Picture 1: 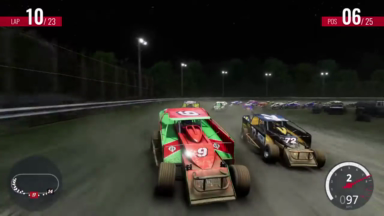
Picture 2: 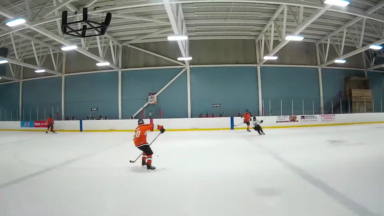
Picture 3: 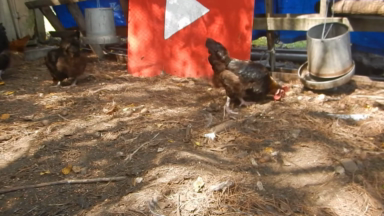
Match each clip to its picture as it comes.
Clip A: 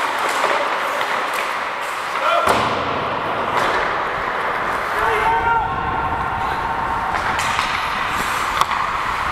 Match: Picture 2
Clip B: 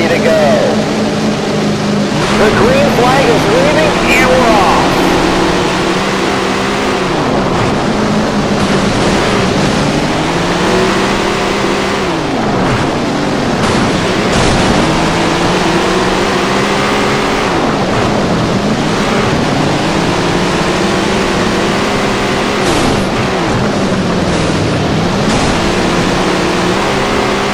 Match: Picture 1